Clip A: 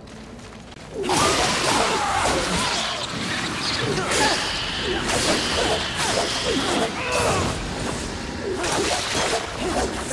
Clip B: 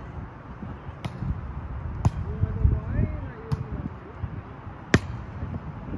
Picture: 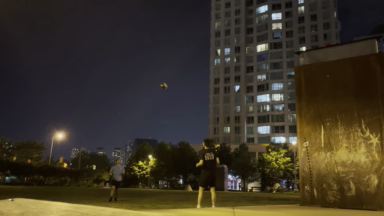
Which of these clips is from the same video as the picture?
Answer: B